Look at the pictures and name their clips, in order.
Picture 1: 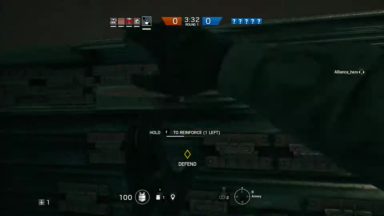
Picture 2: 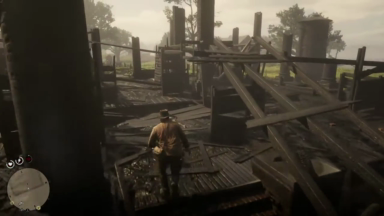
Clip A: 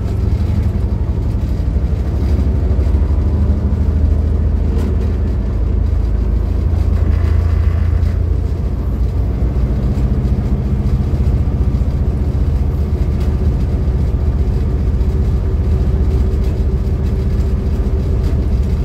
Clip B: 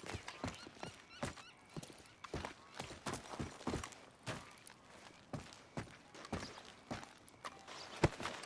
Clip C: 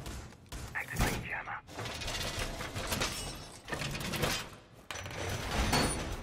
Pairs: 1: C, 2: B